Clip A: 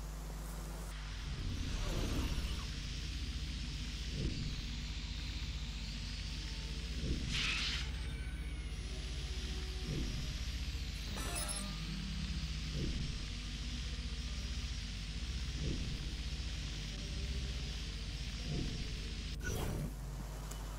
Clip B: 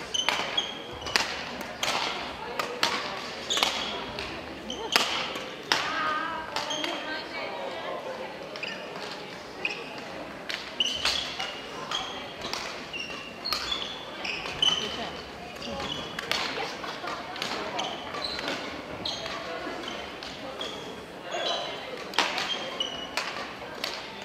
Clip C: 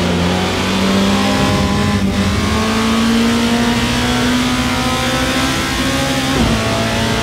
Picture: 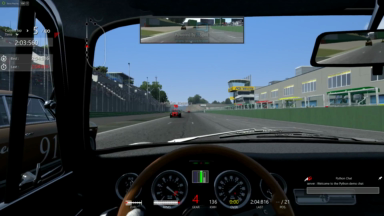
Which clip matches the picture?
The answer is C